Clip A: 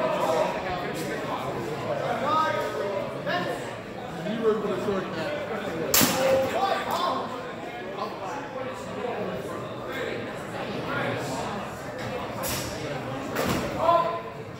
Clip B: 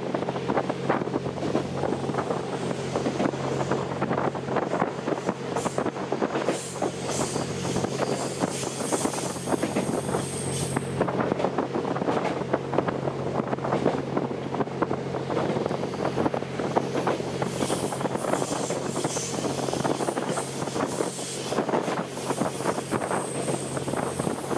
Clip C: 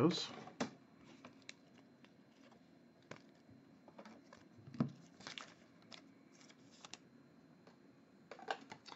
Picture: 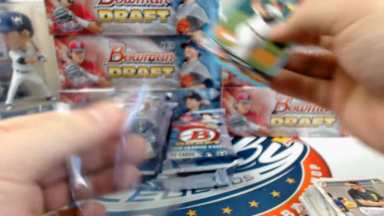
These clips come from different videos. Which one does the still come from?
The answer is C